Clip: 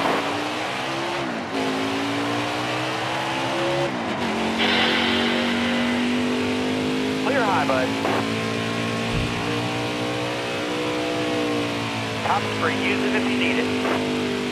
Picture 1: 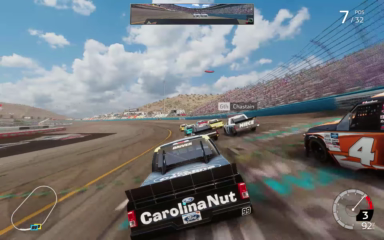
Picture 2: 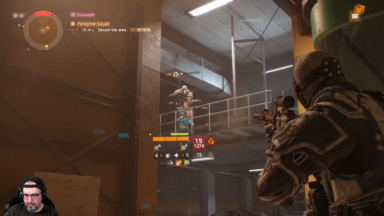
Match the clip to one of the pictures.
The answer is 1